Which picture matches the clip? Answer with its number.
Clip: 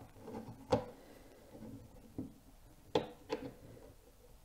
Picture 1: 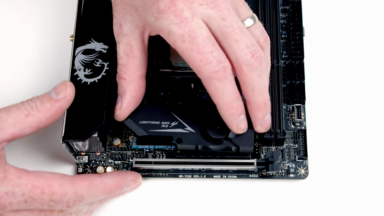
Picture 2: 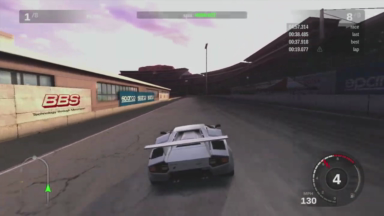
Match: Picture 1